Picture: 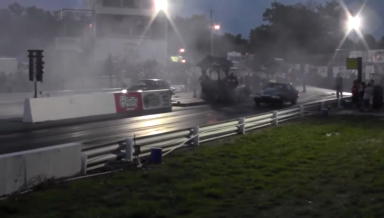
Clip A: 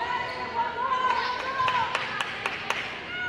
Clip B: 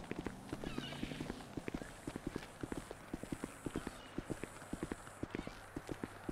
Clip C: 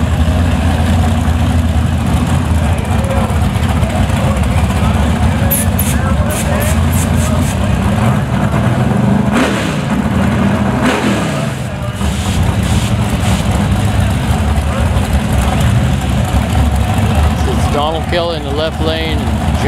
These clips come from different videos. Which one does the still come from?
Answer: C